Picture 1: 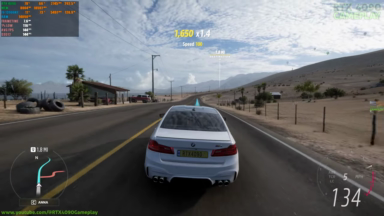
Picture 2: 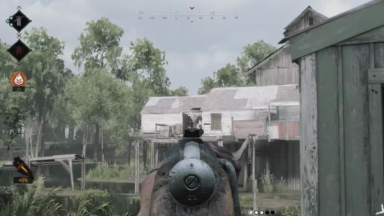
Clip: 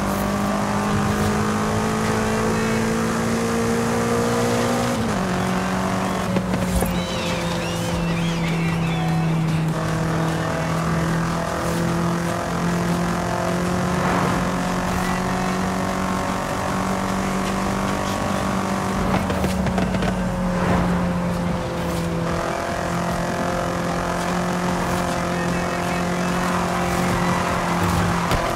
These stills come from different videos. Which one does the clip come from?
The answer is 1